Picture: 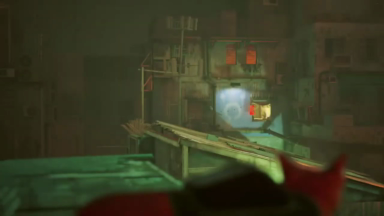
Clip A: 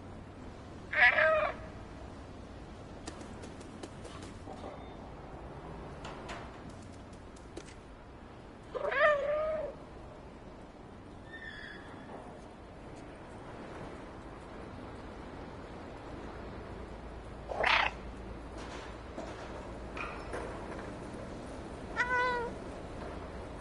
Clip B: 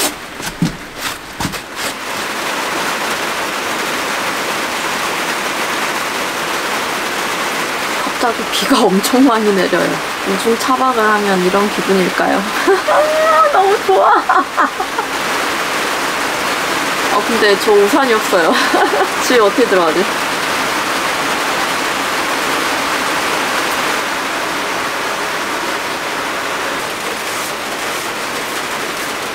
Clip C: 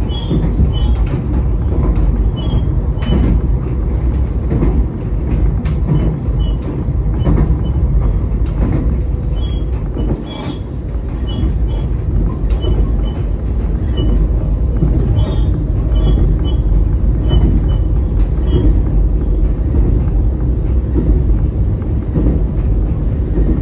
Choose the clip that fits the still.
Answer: A